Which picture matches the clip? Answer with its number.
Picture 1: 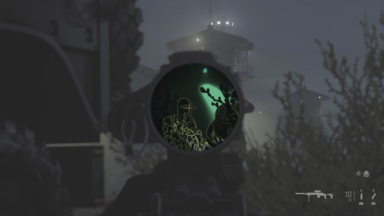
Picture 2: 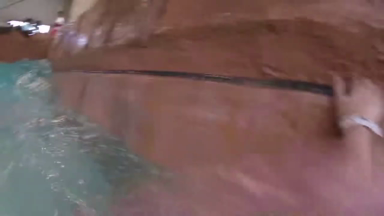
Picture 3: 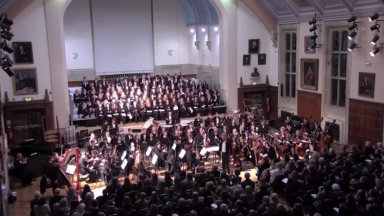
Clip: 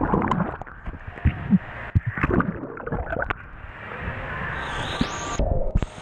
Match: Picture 2